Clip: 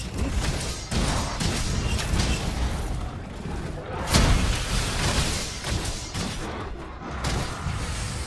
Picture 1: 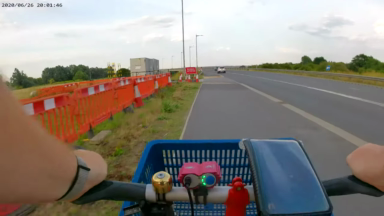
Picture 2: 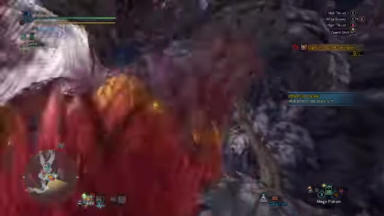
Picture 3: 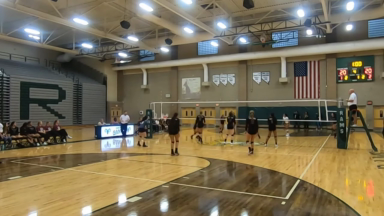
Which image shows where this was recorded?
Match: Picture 2